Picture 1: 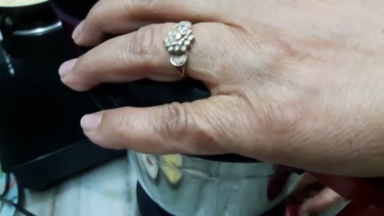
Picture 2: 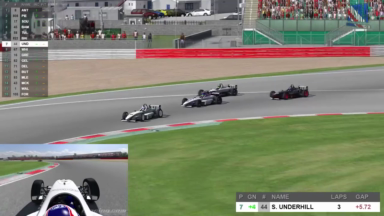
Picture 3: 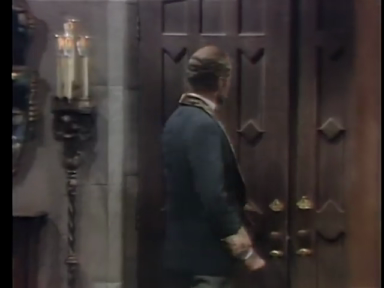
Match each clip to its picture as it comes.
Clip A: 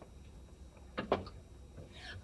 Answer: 3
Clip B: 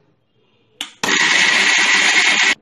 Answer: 1